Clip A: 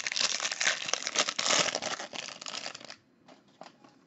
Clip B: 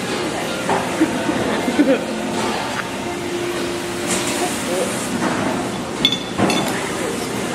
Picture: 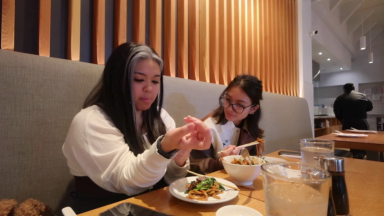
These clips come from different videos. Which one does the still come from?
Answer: B